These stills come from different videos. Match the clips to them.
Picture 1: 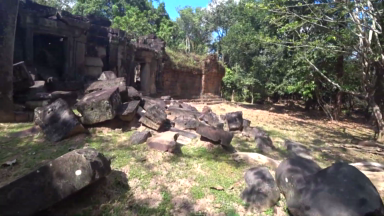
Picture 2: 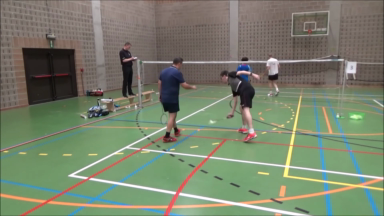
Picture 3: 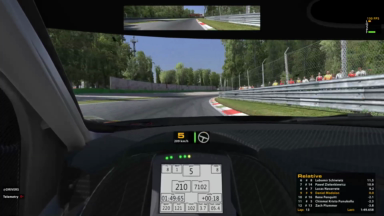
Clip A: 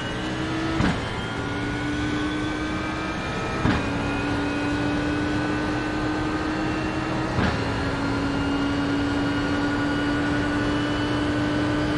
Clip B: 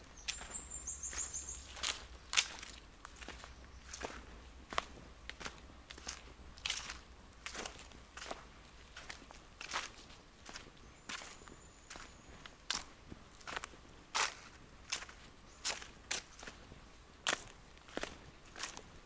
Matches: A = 3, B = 1